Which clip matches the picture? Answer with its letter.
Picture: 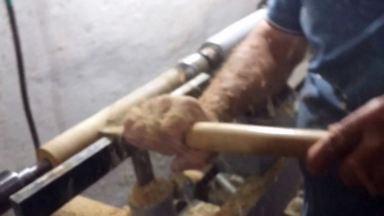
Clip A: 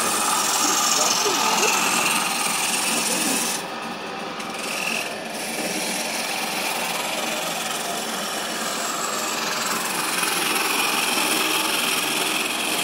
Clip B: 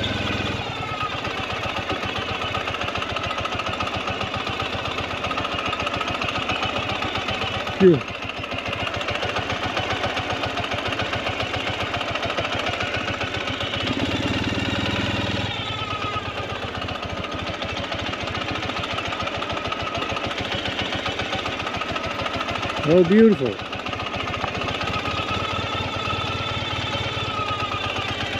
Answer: A